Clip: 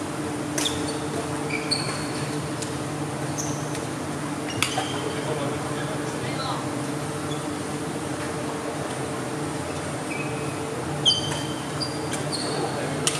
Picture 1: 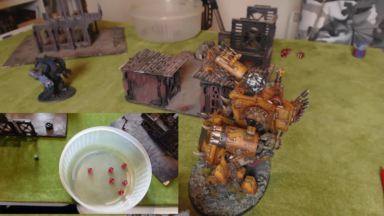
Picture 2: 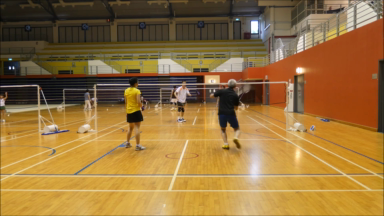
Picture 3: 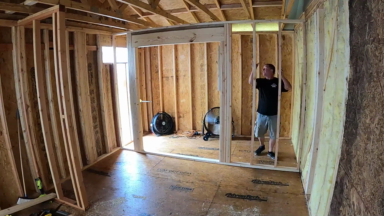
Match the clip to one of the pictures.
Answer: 2